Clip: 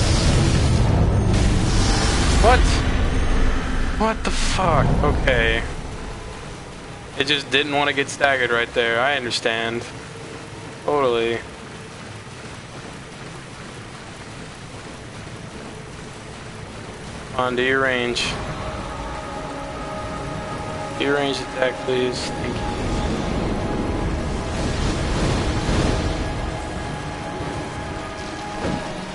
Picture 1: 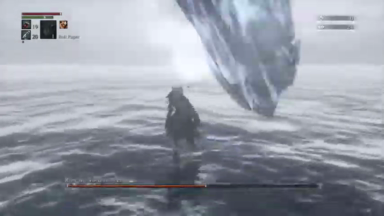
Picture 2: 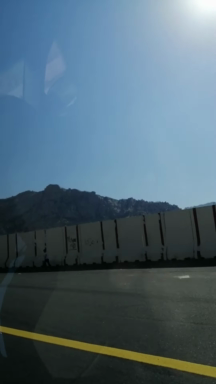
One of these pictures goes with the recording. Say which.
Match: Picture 1